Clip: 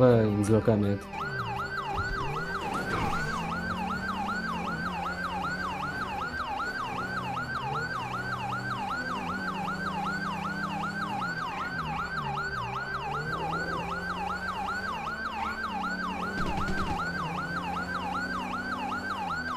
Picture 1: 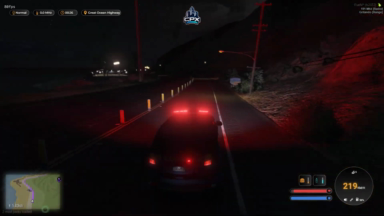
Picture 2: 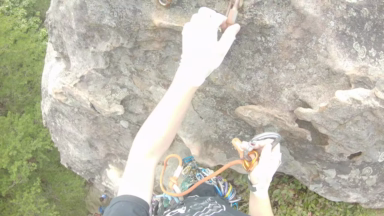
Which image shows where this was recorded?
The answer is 1